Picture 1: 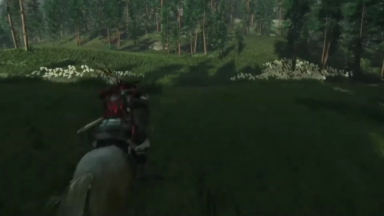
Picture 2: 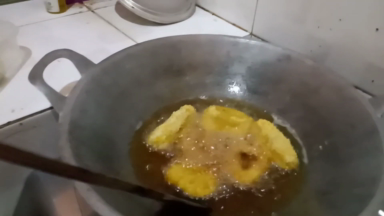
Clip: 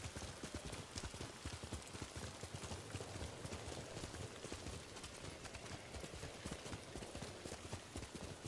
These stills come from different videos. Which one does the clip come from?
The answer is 1